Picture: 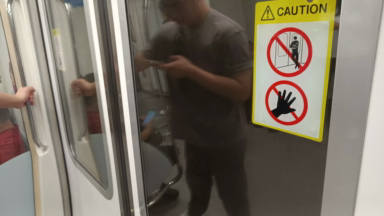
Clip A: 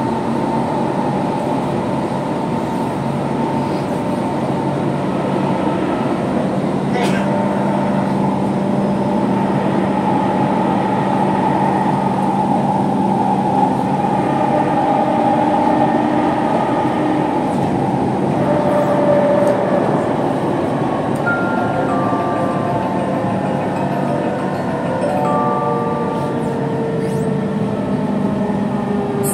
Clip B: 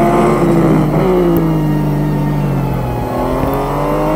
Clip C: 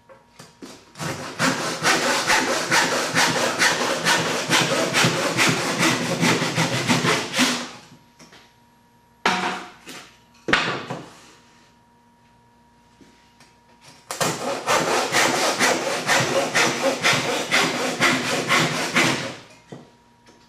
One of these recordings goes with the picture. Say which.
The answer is A